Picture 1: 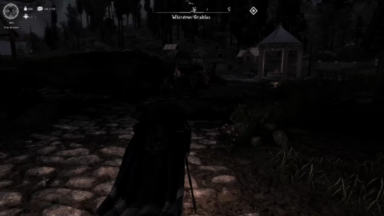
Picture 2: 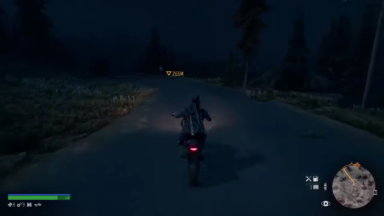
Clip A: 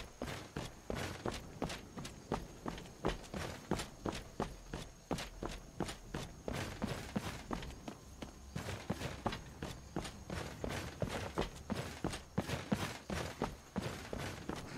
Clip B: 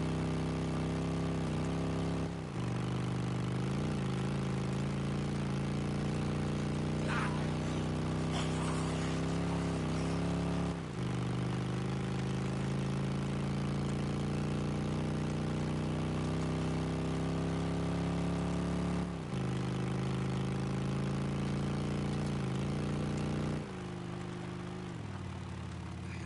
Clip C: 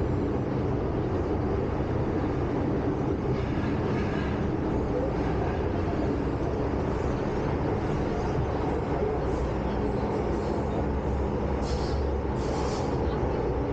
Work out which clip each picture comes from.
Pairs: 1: A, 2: B